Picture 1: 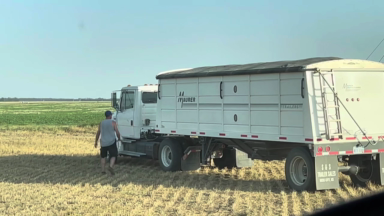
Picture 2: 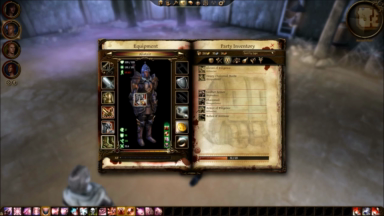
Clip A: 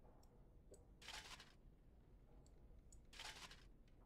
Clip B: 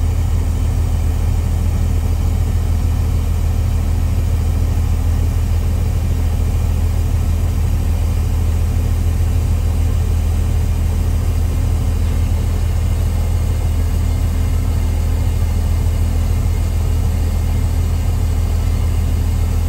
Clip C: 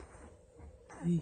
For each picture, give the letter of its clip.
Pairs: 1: B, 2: A